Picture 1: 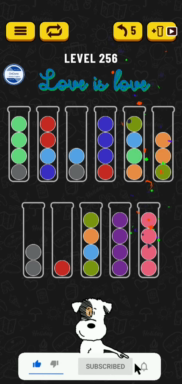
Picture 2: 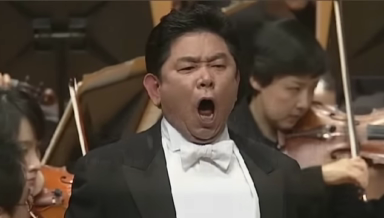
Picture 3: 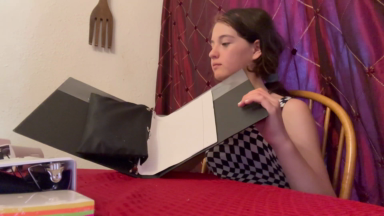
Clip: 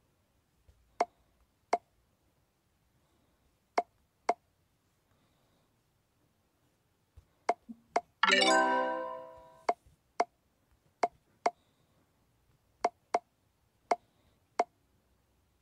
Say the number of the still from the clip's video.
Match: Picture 1